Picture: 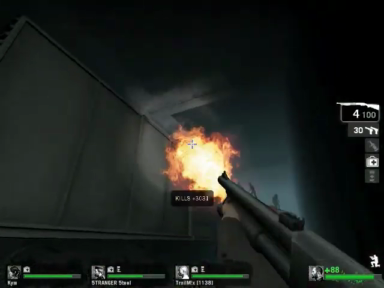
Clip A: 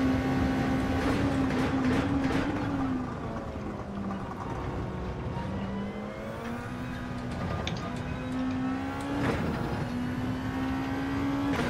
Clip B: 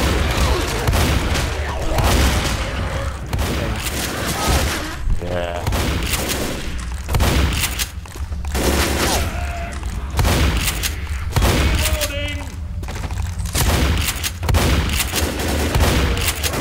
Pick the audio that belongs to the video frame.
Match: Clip B